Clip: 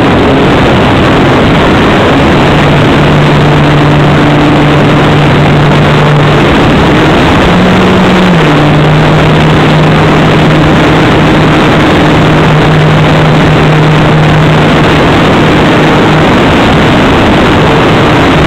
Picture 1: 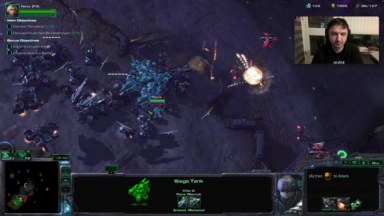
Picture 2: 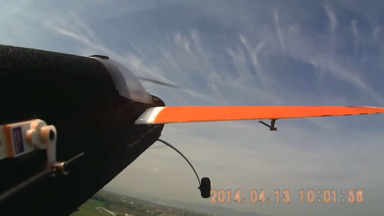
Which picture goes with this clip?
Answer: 2